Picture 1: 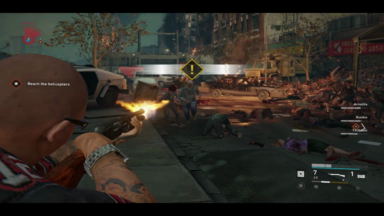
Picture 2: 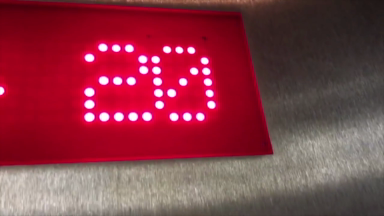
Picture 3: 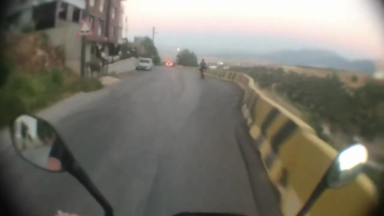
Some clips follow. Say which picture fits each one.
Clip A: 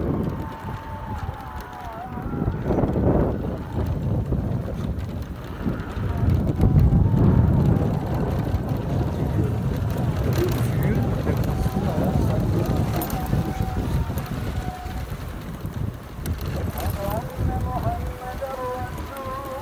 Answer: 3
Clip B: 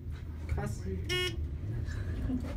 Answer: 2